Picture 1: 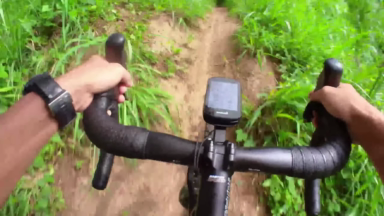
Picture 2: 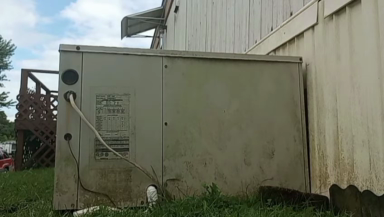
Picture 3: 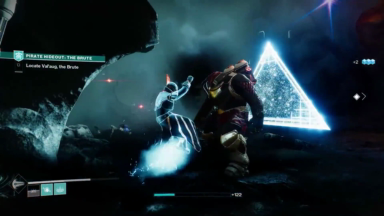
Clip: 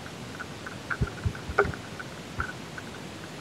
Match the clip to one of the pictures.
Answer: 1